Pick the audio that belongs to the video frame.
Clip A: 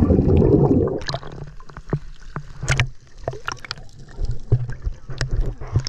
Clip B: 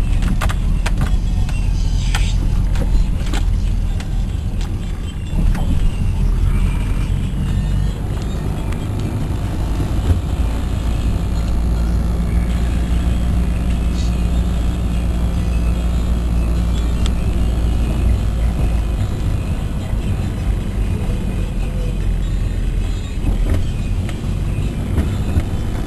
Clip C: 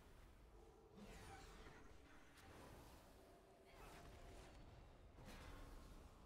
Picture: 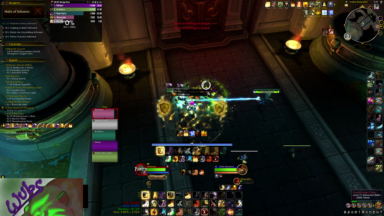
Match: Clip C